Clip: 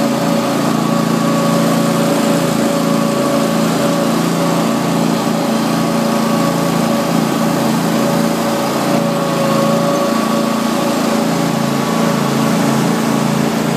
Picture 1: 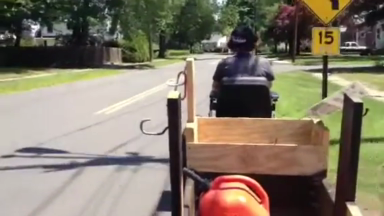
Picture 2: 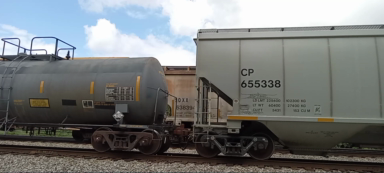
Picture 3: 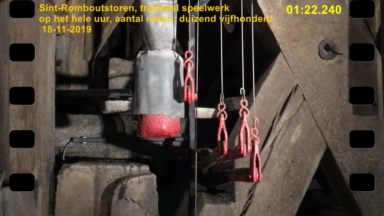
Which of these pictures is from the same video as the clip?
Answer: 1